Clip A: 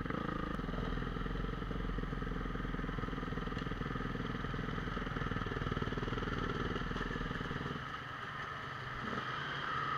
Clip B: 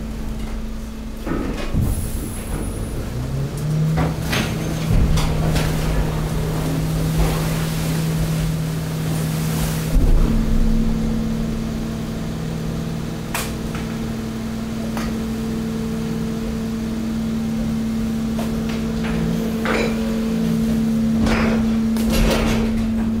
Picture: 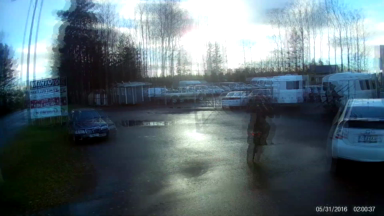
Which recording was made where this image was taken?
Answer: A